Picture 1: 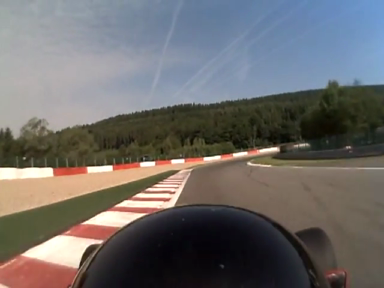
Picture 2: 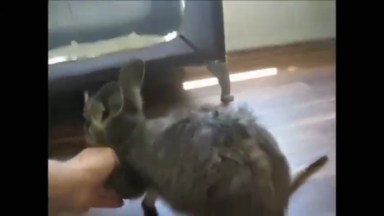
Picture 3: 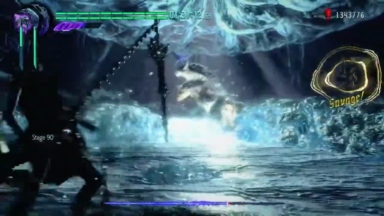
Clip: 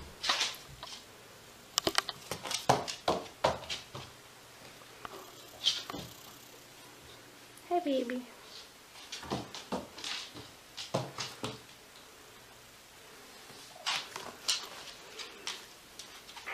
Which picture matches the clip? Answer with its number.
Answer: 2